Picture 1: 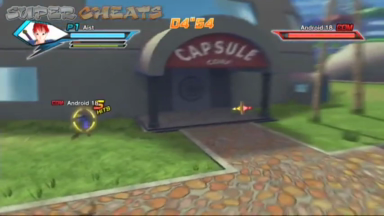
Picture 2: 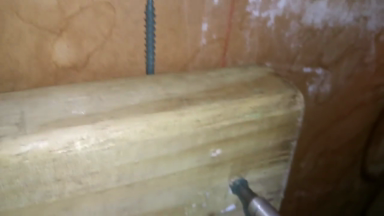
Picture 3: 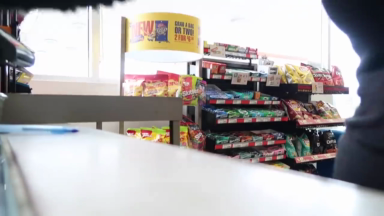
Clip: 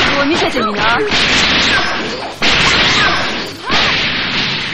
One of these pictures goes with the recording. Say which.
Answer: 1